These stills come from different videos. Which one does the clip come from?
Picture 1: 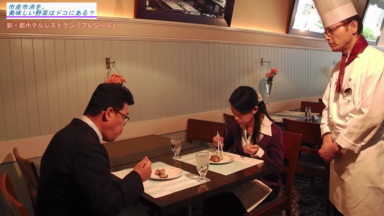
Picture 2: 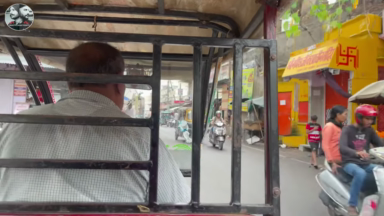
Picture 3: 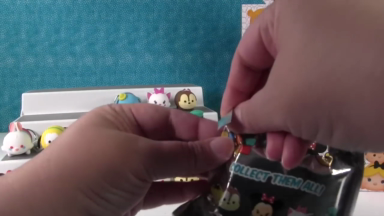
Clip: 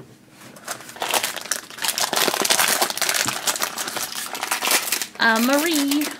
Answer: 3